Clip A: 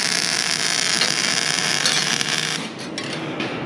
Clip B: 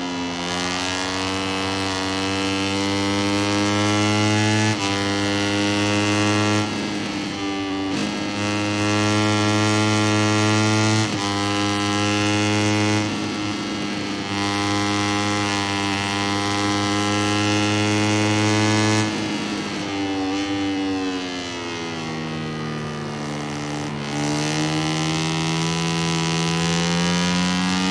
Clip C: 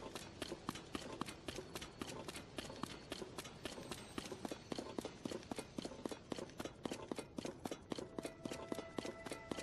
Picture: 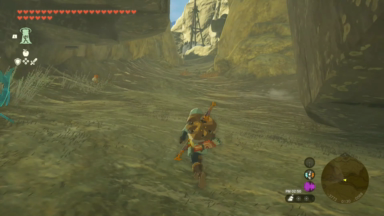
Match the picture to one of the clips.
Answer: C